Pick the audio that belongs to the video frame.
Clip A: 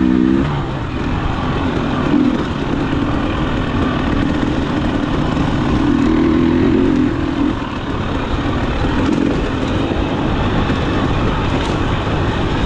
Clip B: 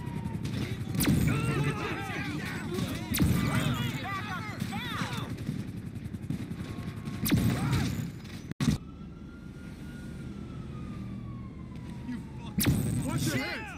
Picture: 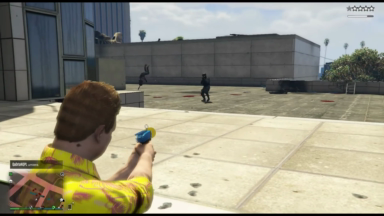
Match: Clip B